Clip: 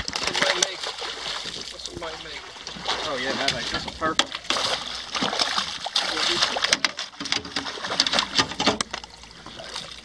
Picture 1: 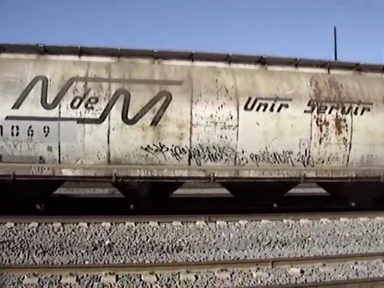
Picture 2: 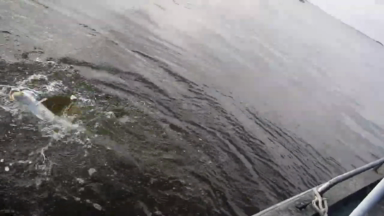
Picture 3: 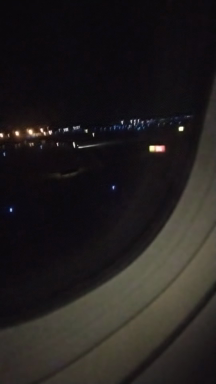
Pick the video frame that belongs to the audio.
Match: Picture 2